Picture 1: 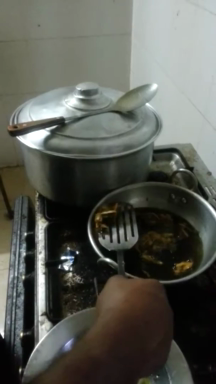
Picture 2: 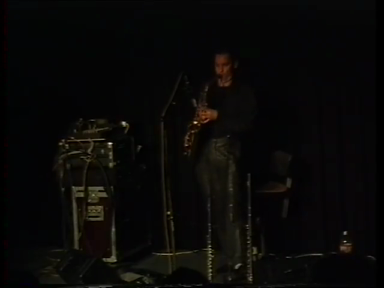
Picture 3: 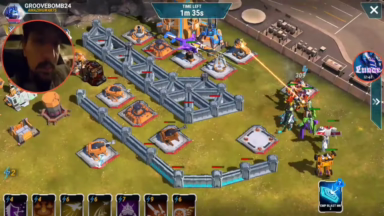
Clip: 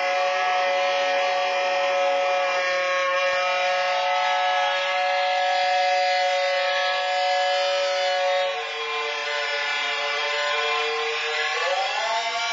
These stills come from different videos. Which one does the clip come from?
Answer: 2